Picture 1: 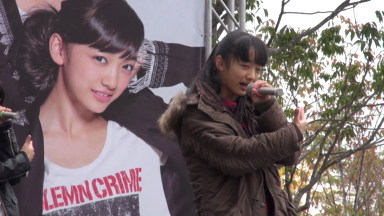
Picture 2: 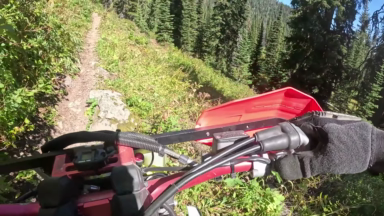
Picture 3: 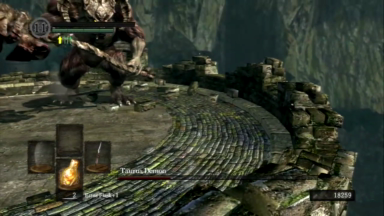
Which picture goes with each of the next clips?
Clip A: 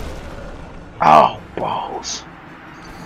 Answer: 3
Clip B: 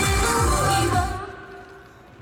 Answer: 1